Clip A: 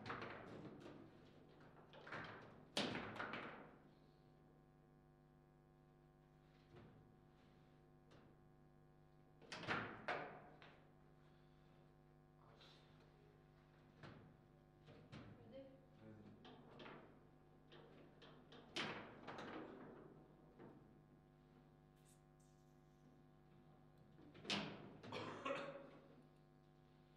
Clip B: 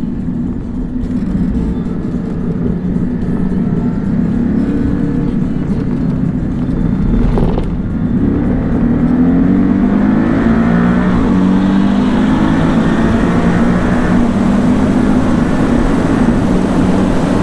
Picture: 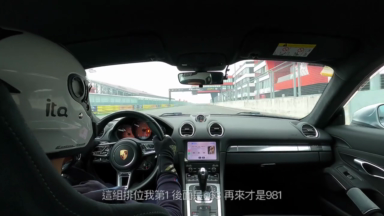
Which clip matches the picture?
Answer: B